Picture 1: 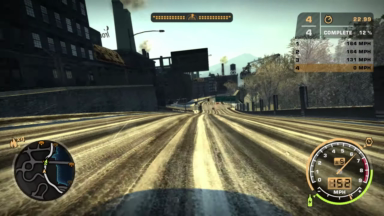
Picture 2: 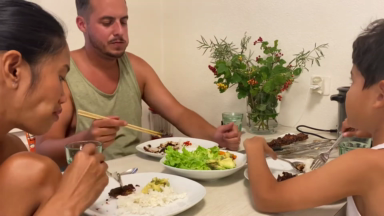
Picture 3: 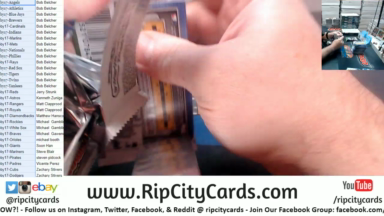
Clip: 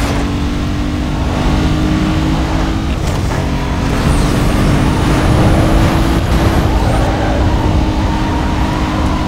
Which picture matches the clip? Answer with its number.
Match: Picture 1